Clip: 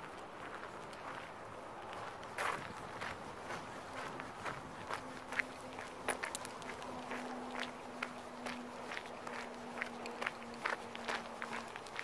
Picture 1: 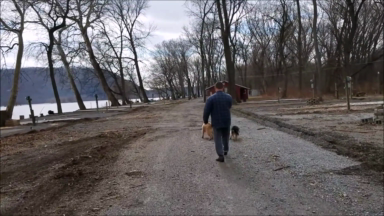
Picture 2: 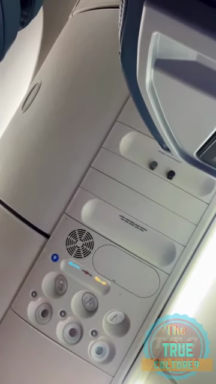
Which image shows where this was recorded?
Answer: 1